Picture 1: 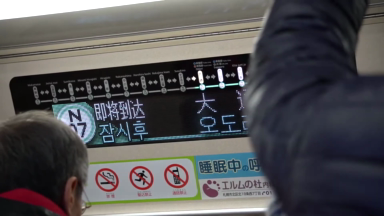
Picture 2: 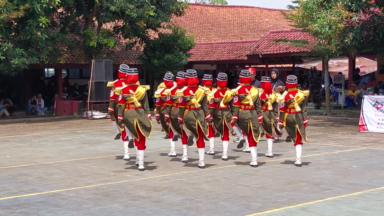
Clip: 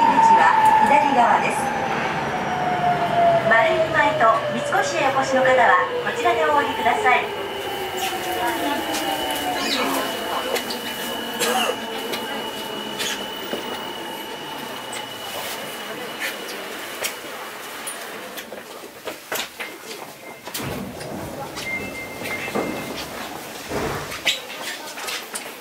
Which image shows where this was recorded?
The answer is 1